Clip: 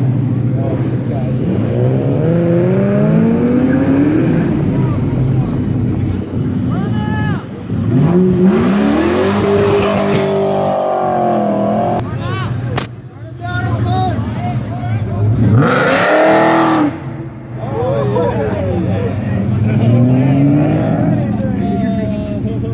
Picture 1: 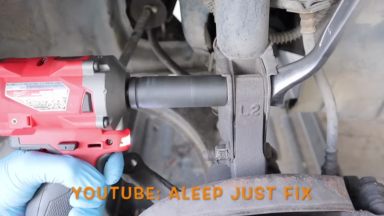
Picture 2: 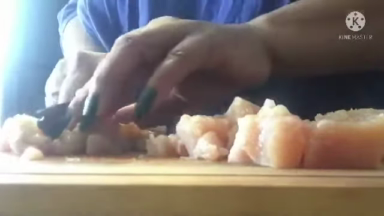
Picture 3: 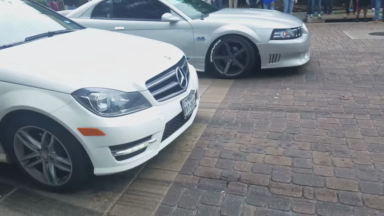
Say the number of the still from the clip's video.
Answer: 3